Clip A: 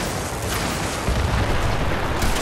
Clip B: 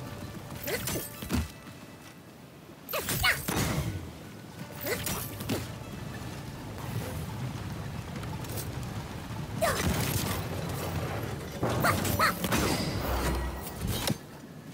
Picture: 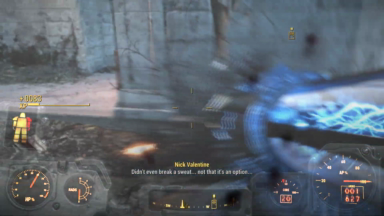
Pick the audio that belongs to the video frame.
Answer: A